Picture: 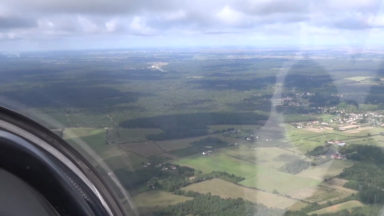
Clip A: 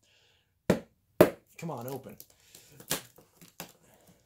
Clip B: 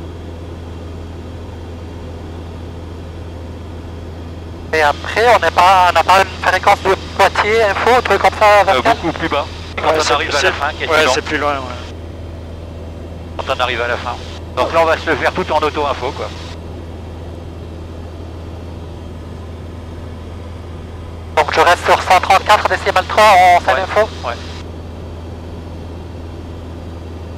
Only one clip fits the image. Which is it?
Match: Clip B